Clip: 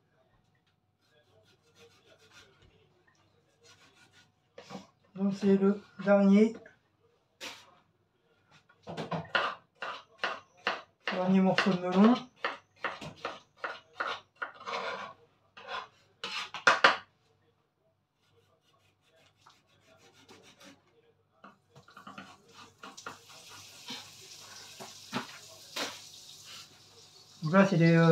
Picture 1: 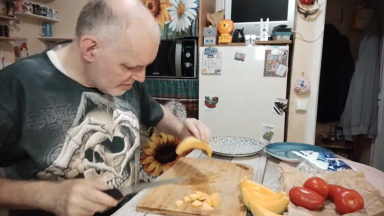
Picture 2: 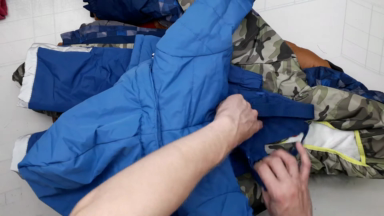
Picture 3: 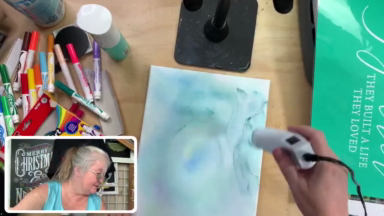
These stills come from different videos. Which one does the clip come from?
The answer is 1